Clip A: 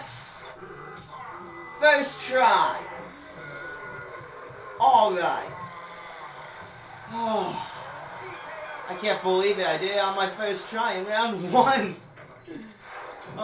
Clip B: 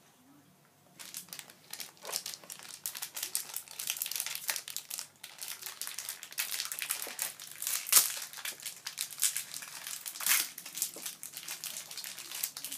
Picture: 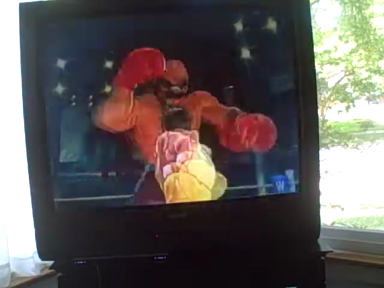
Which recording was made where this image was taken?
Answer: A